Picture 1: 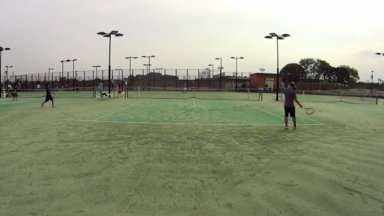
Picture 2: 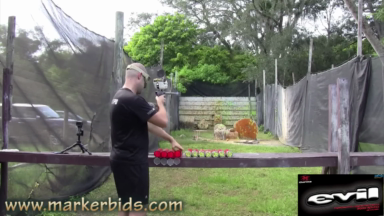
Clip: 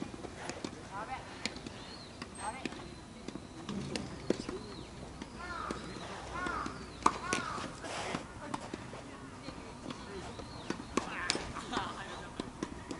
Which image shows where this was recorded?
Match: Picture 1